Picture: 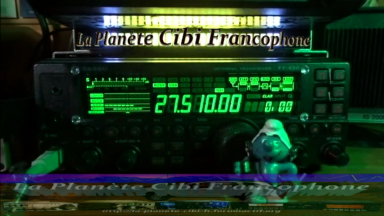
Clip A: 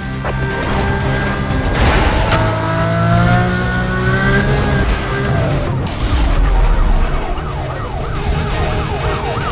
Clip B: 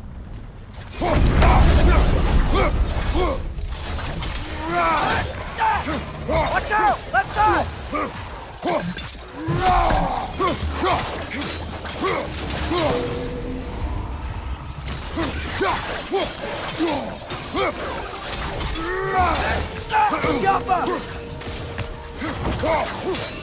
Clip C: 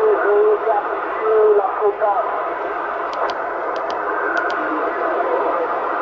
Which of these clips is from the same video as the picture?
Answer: C